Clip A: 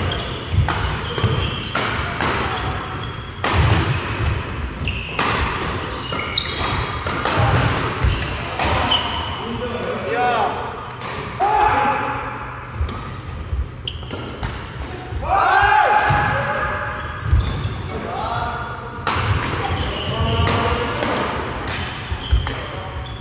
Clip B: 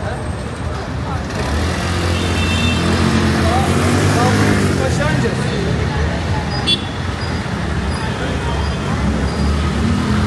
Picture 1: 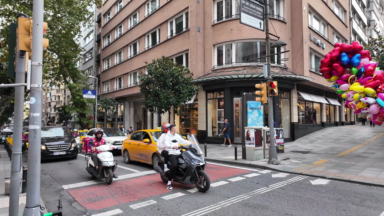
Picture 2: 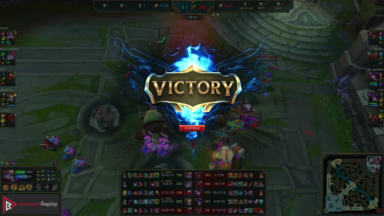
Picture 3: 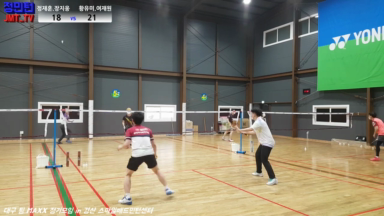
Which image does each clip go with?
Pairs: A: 3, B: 1